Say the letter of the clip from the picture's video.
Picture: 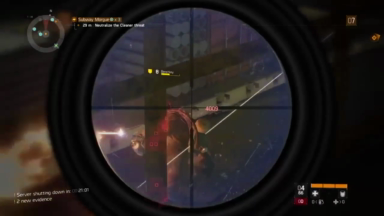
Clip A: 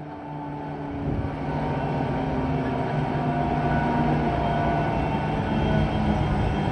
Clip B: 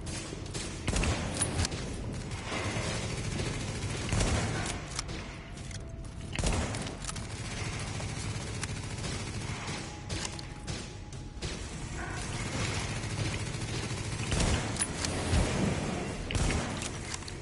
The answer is B